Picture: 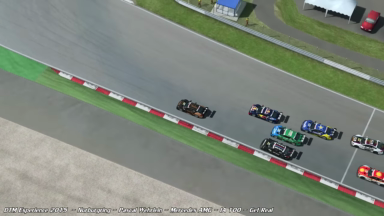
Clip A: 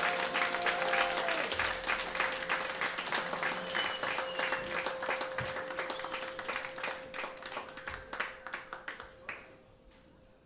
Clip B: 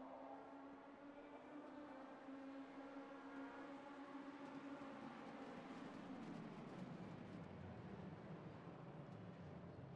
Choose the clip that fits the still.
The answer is B